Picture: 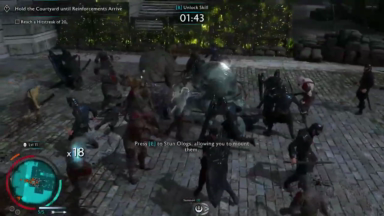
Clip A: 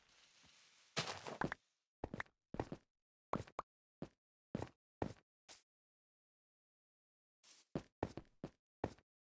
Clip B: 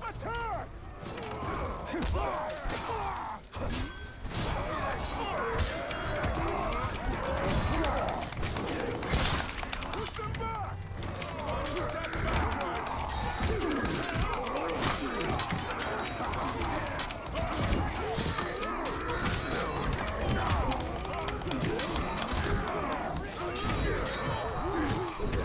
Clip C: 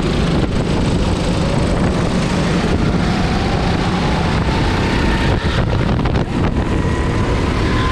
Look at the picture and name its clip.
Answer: B